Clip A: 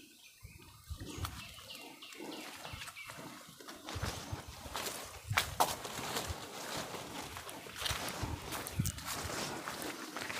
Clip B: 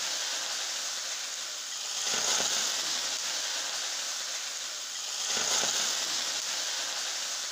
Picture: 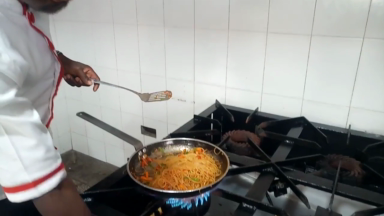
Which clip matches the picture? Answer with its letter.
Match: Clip B